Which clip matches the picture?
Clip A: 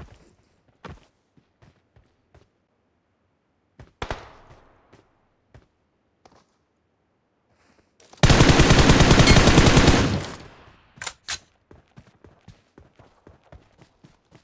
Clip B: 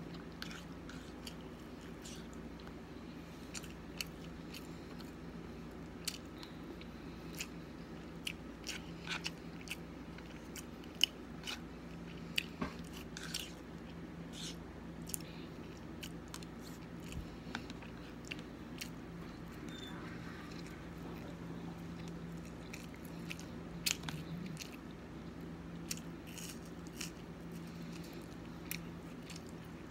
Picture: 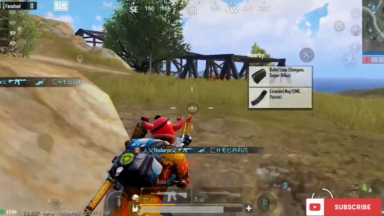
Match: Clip A